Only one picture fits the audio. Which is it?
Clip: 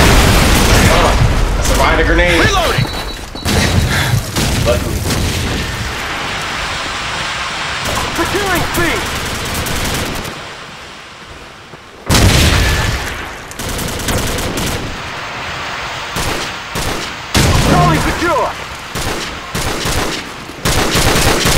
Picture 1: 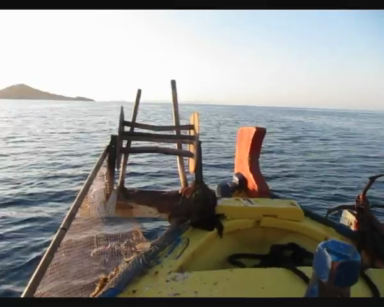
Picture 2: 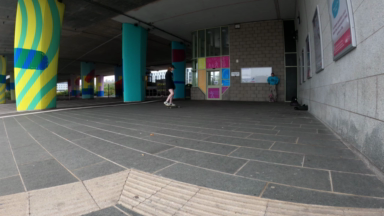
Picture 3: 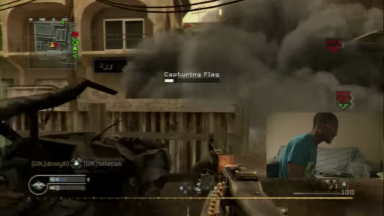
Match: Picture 3